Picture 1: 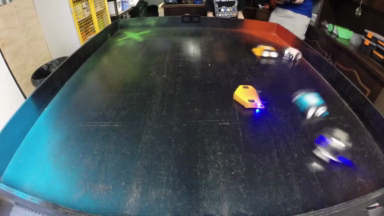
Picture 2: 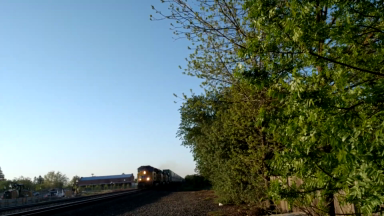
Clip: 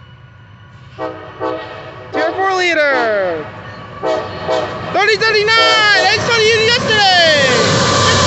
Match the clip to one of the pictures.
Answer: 2